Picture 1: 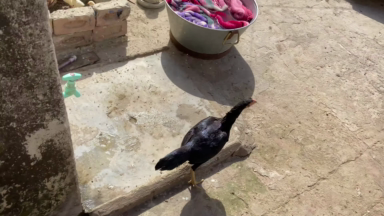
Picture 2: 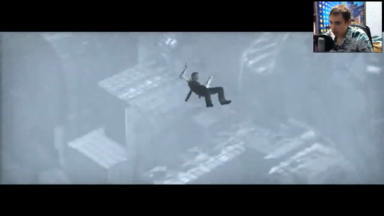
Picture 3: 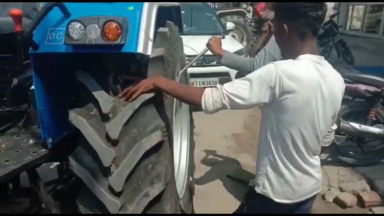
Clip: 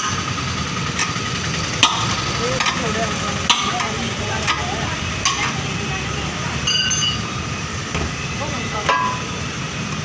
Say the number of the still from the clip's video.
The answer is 3